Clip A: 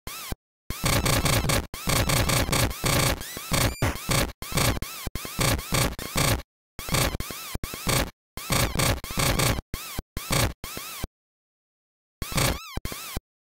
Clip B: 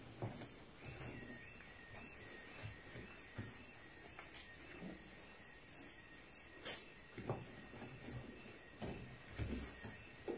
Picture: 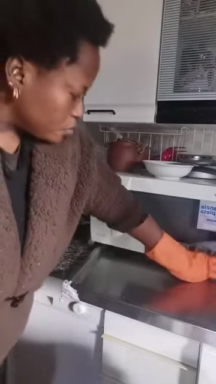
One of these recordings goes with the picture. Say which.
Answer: B